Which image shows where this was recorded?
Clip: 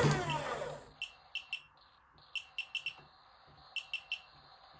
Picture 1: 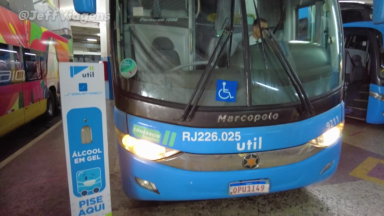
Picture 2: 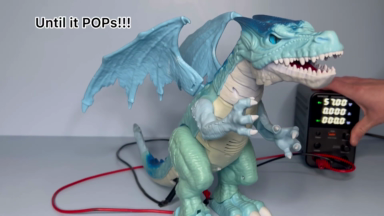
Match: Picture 2